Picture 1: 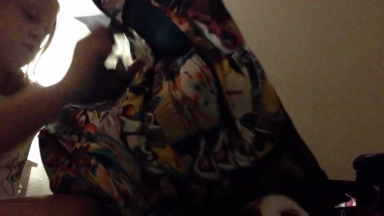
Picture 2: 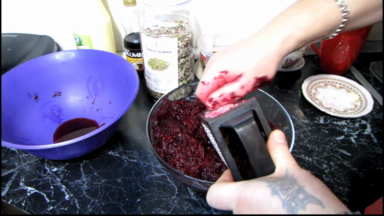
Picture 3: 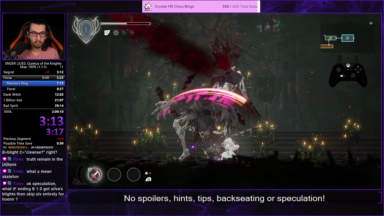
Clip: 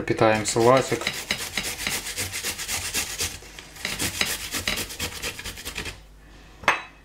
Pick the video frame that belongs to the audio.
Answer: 2